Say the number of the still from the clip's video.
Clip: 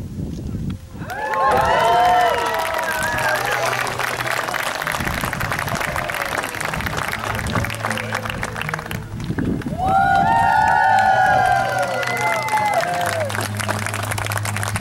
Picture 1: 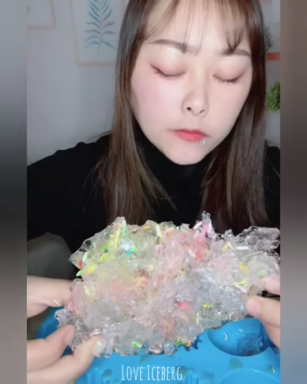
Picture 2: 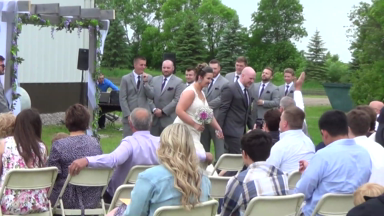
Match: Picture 2